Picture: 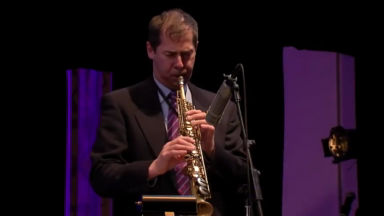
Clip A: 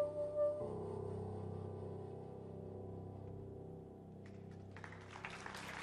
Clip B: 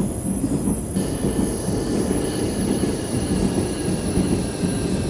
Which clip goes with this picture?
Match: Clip A